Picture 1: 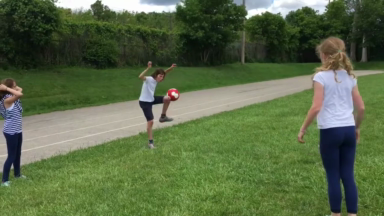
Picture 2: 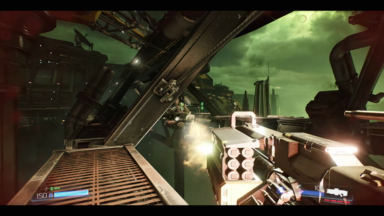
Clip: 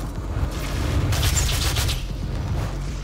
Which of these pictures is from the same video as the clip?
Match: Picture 2